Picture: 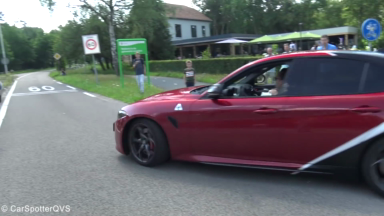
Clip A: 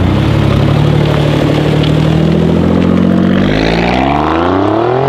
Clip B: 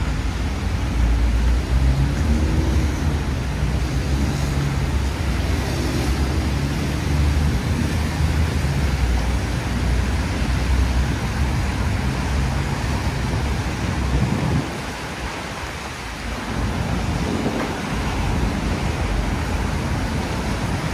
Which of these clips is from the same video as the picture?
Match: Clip A